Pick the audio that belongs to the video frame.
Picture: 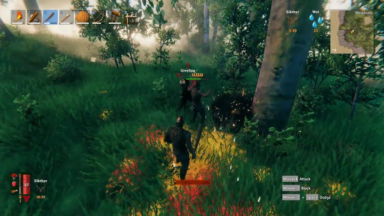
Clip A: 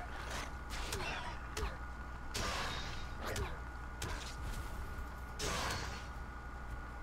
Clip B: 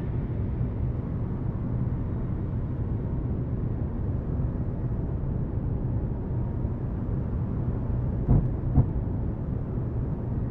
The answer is A